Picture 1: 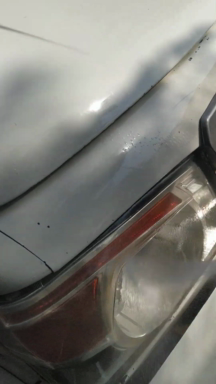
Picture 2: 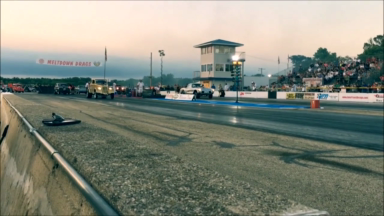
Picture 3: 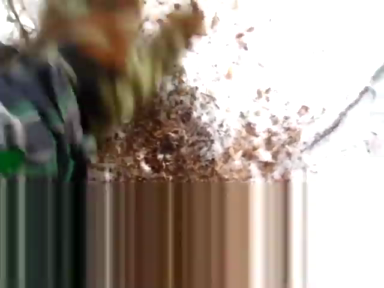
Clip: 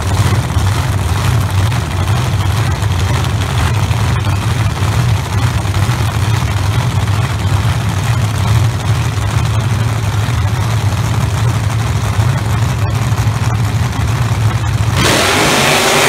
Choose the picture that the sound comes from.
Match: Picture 2